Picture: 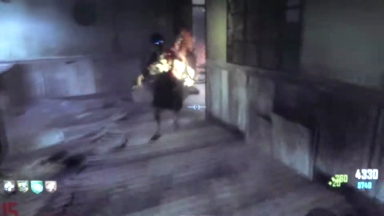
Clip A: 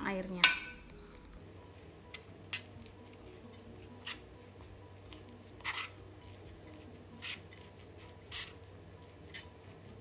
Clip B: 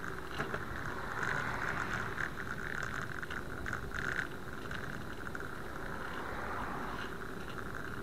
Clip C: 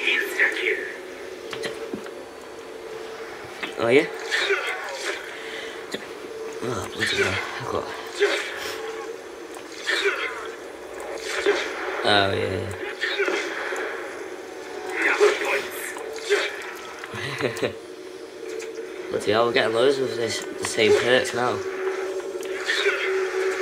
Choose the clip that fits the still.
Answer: C